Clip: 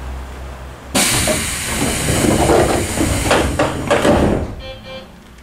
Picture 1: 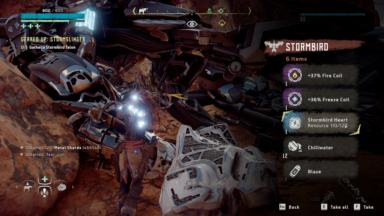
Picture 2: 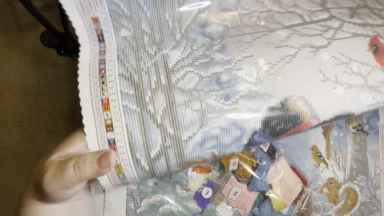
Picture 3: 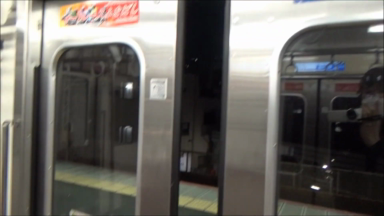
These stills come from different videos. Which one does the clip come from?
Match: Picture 3